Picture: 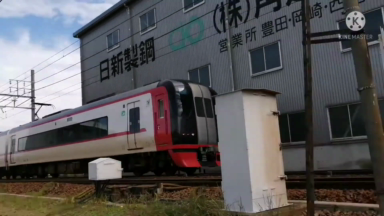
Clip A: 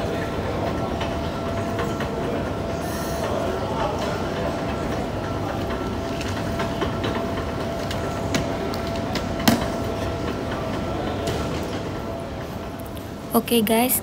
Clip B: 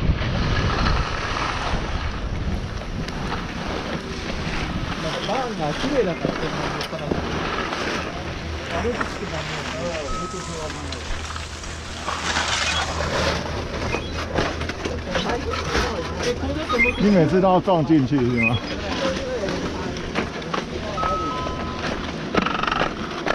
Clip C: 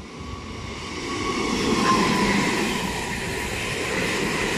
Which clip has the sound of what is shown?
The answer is C